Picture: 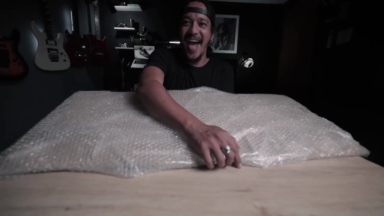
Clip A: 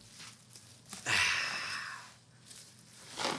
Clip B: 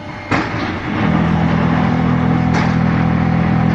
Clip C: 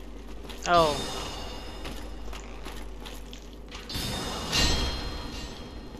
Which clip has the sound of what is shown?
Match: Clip A